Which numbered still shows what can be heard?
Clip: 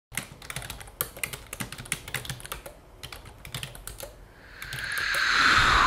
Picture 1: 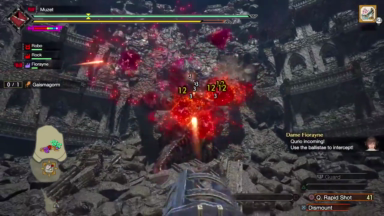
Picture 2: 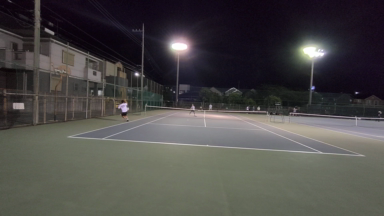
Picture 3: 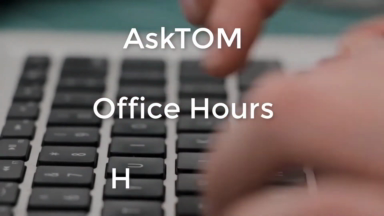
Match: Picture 3